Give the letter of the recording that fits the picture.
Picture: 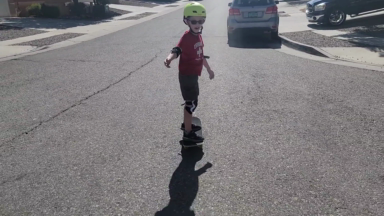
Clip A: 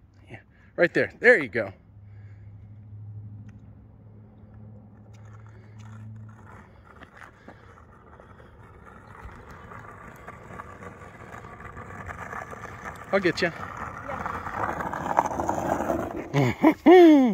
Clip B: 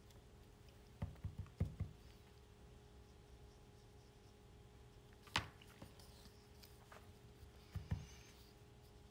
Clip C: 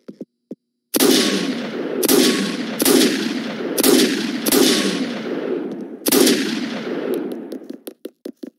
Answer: A